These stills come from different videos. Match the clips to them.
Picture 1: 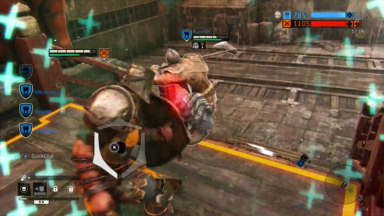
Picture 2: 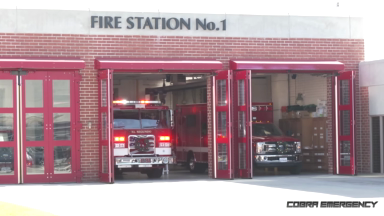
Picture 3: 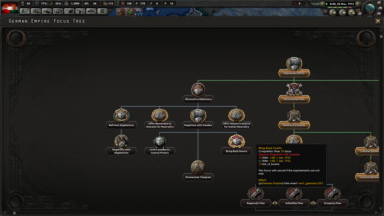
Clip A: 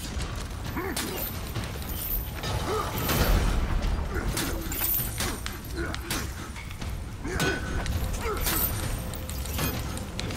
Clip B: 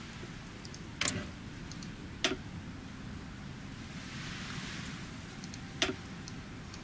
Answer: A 1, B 3